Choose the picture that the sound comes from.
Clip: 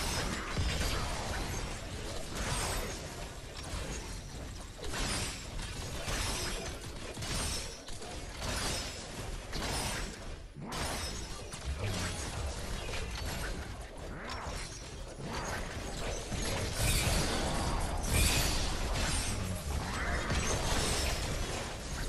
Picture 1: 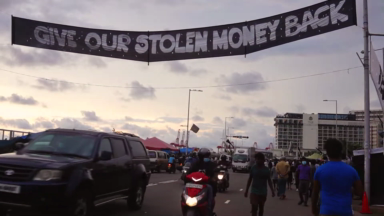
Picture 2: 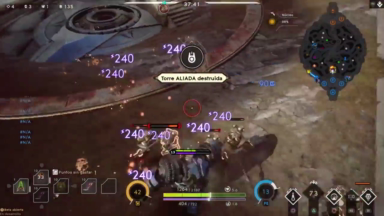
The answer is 2